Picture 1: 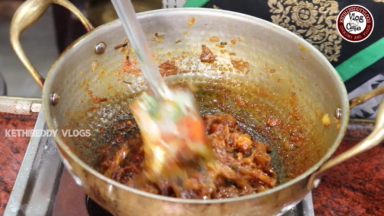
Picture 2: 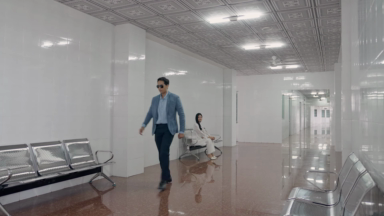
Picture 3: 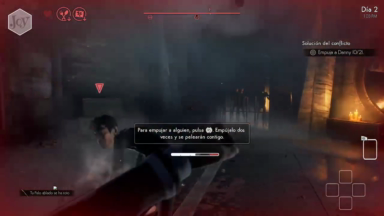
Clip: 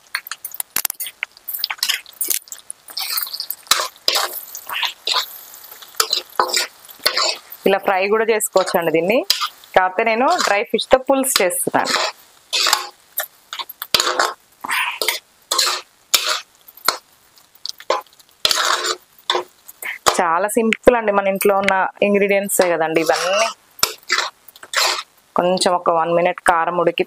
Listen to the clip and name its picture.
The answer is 1